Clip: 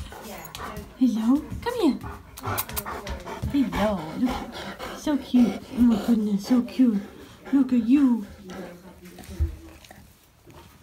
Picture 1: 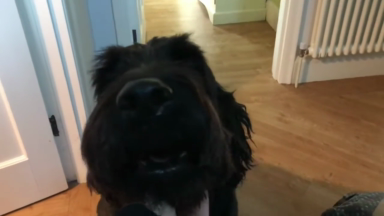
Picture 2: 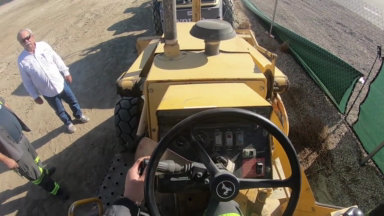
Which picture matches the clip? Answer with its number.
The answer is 1